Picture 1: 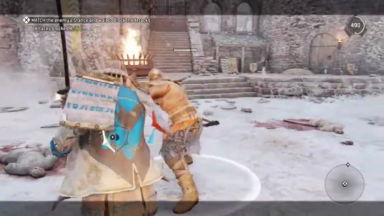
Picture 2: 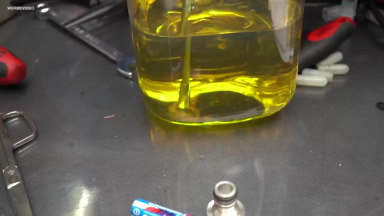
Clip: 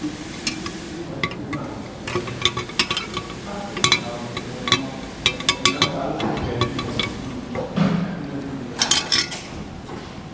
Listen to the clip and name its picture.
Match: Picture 2